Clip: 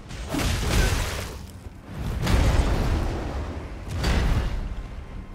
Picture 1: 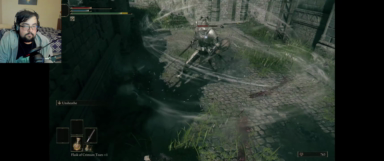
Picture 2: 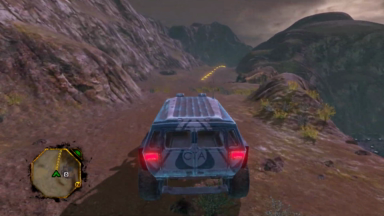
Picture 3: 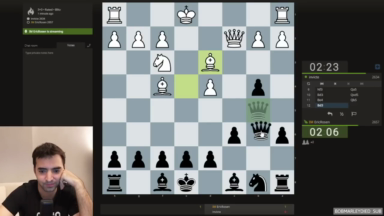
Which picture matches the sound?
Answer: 1